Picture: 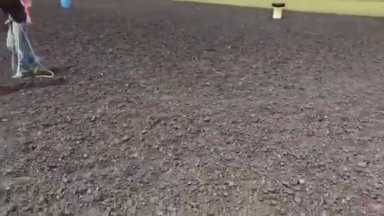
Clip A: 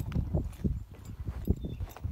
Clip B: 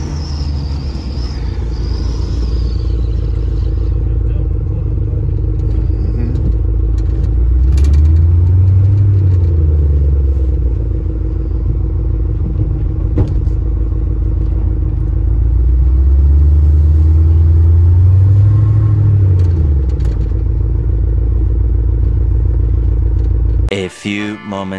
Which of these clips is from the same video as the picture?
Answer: A